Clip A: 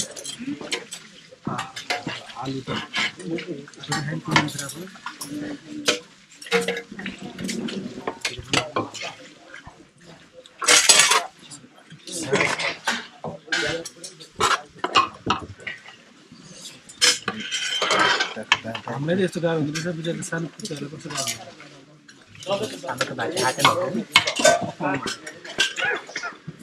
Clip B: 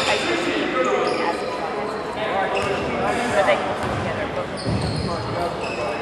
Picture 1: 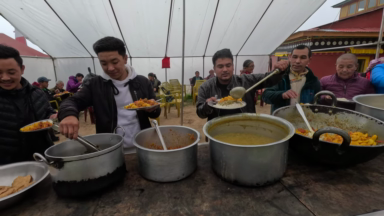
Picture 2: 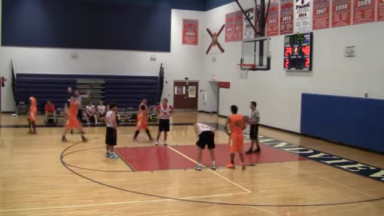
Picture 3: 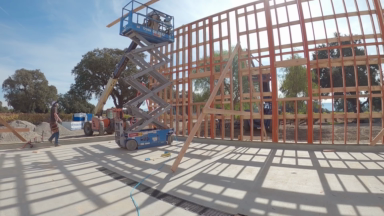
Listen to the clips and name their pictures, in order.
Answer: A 1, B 2